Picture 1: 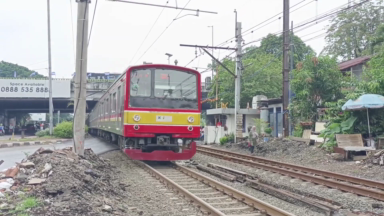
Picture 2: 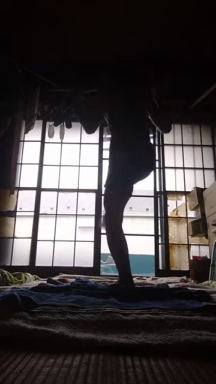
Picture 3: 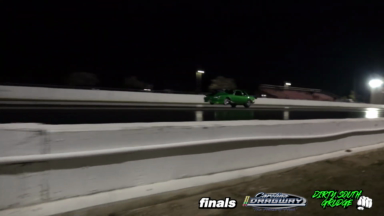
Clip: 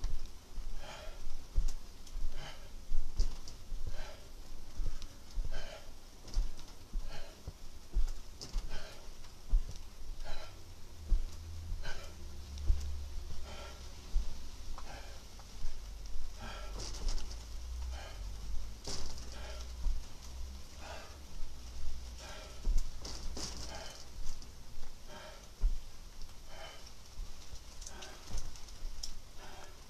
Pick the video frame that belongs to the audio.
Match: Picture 2